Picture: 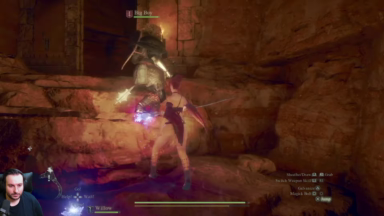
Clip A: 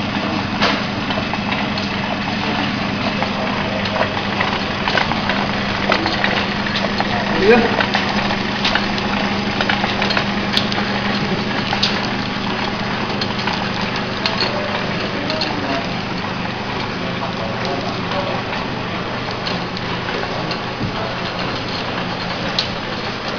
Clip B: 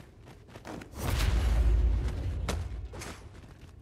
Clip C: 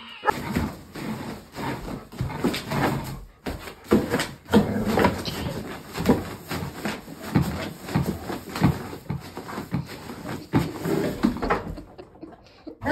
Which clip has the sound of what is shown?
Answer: B